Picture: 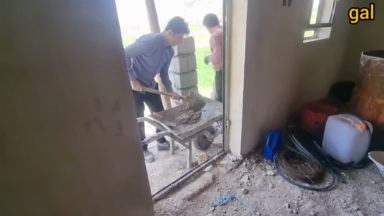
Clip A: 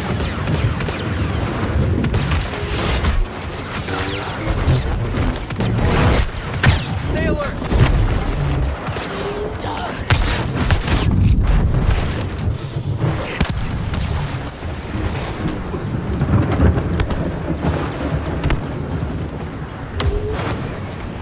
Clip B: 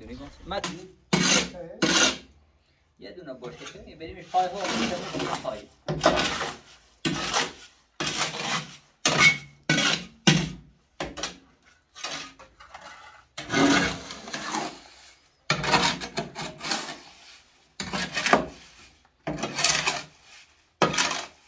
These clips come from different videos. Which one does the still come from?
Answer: B